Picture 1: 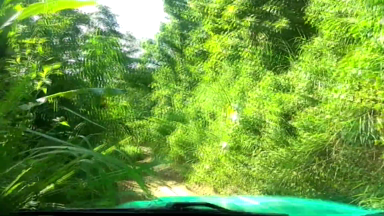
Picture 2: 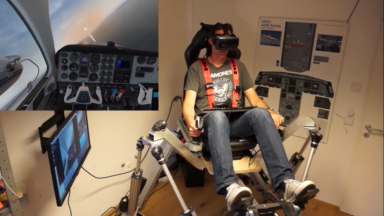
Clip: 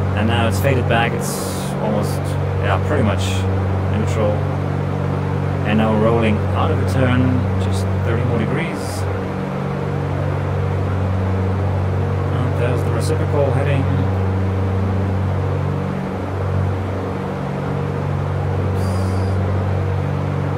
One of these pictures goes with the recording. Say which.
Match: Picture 2